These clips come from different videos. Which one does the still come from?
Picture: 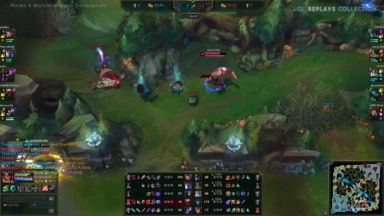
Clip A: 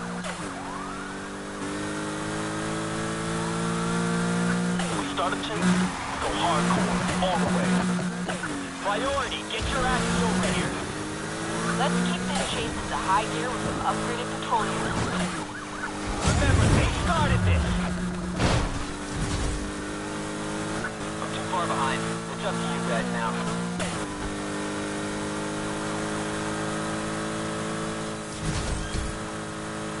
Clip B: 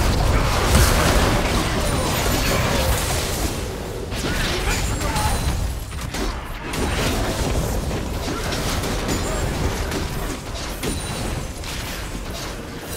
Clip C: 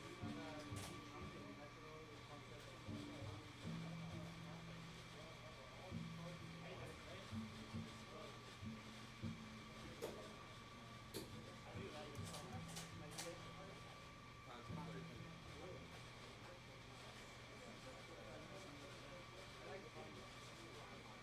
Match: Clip B